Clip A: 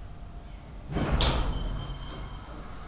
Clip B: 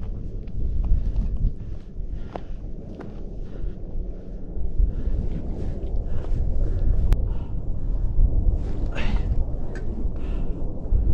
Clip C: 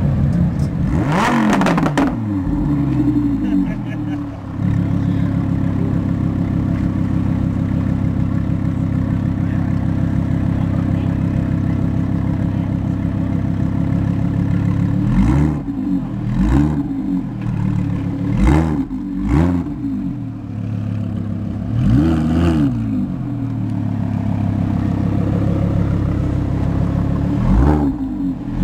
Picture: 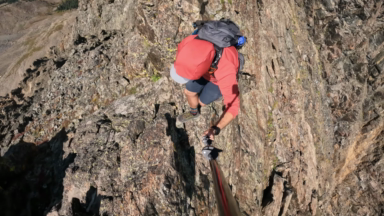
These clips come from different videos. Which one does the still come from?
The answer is B